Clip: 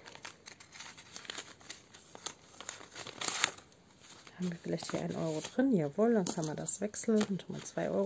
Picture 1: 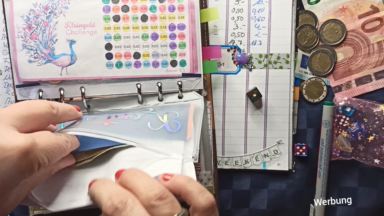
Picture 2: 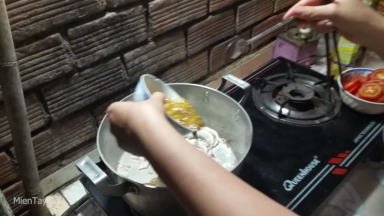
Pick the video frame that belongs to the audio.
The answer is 1